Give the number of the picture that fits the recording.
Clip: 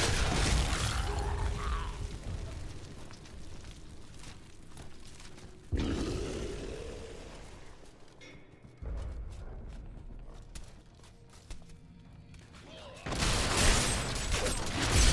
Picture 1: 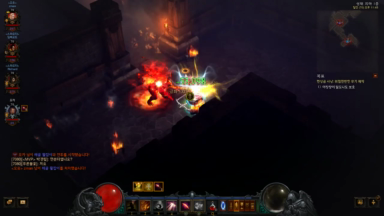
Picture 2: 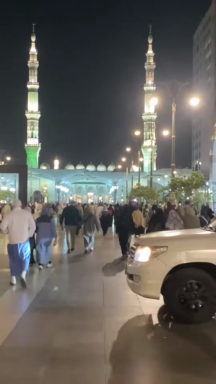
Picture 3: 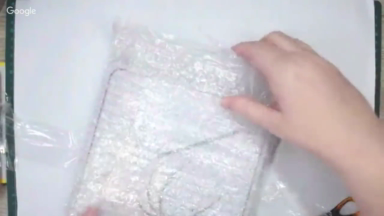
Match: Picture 1